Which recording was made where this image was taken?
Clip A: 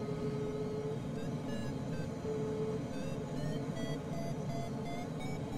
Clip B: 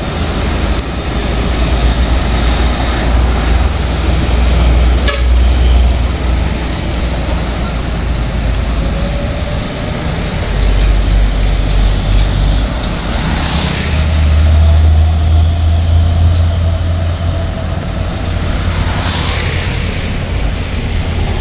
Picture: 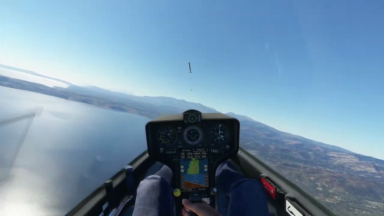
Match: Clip A